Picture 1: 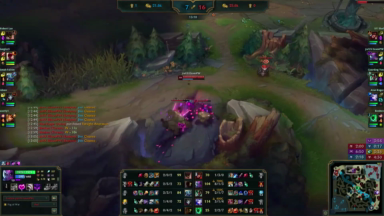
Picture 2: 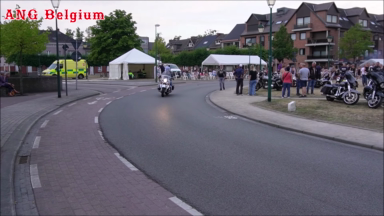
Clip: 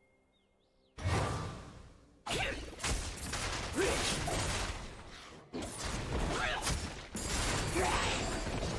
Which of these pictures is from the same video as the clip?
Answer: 1